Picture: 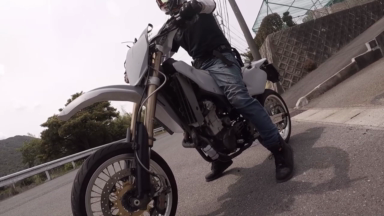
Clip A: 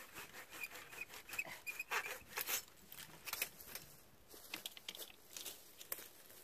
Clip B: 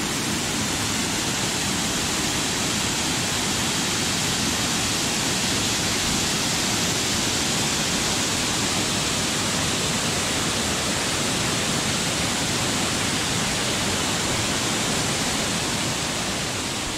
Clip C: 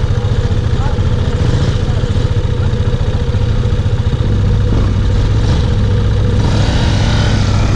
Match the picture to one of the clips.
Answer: C